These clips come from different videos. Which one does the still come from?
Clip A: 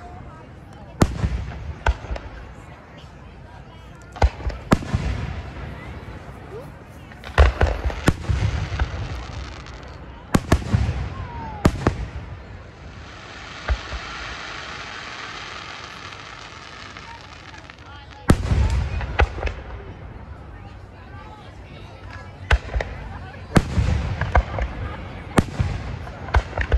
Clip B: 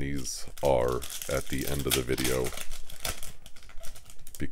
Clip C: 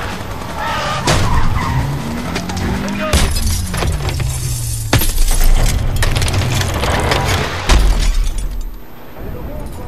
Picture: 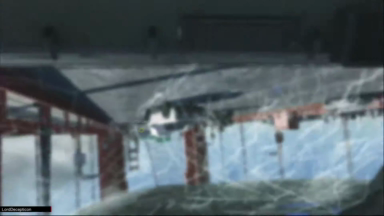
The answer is C